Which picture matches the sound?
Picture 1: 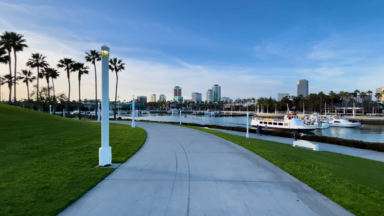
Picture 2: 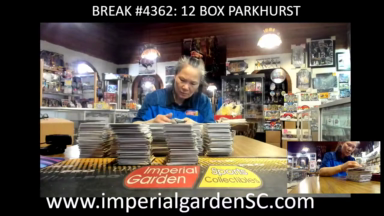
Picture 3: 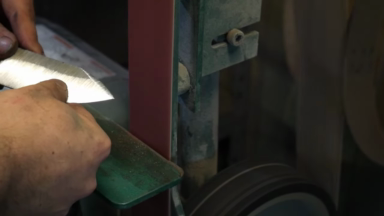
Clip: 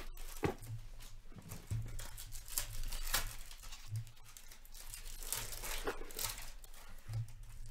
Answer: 2